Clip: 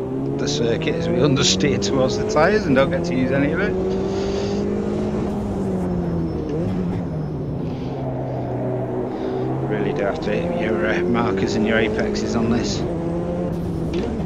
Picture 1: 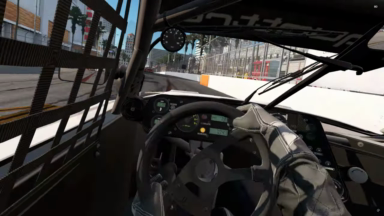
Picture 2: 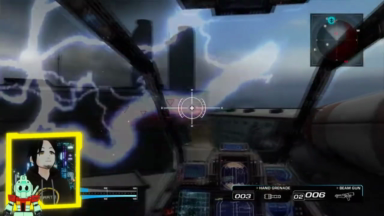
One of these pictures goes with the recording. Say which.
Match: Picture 1